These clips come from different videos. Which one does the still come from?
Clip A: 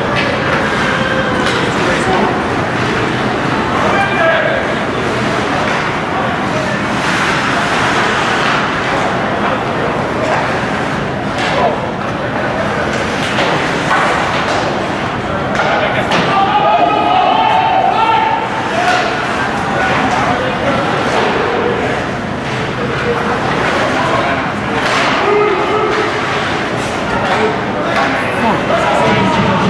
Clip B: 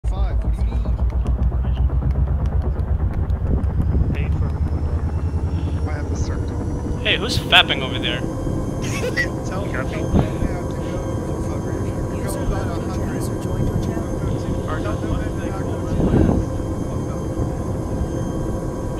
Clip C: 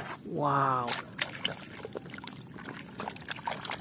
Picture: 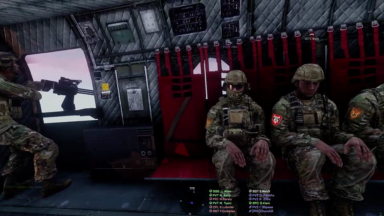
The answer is B